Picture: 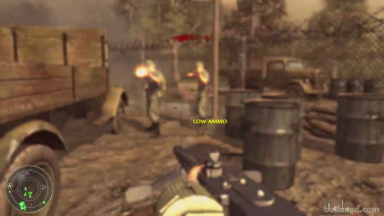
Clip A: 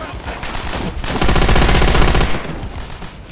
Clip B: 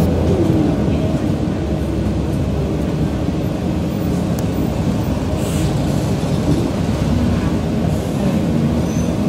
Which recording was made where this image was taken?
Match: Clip A